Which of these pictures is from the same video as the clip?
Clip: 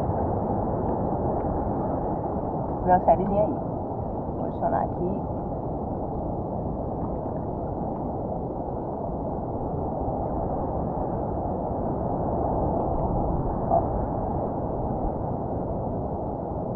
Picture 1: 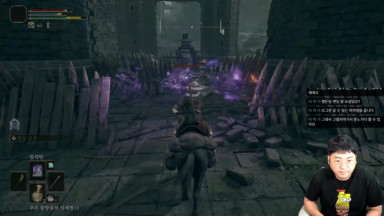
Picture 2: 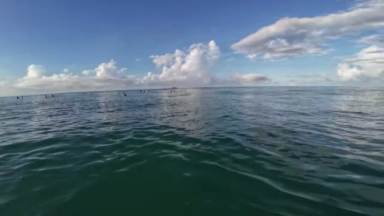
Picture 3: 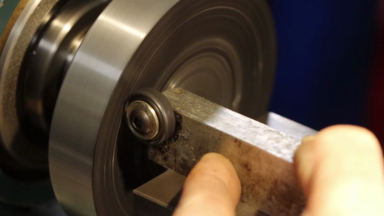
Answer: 2